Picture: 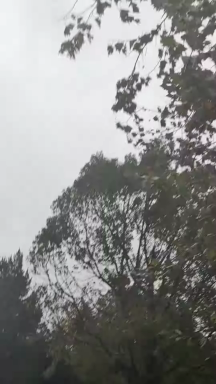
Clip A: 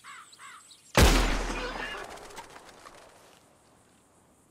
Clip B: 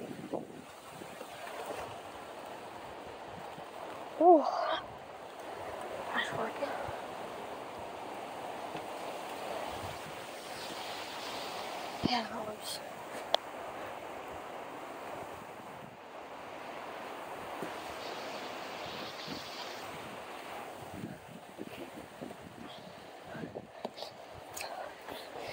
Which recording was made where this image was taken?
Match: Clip B